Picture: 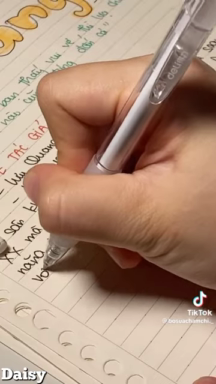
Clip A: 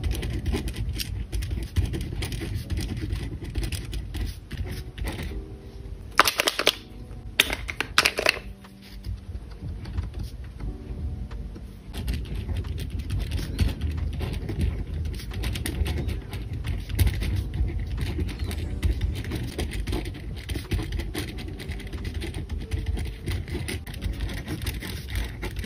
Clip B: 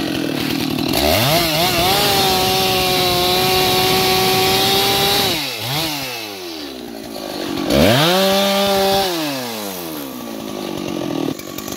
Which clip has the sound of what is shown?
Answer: A